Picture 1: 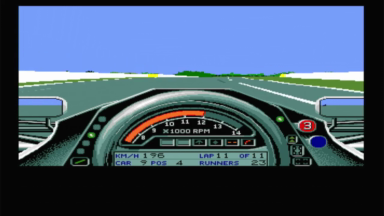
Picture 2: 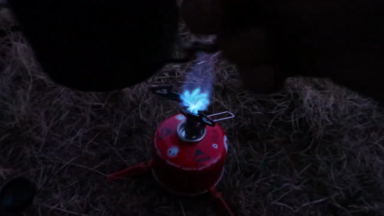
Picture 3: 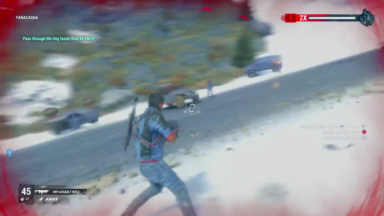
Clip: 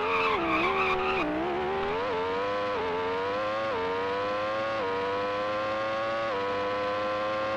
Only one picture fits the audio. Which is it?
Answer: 1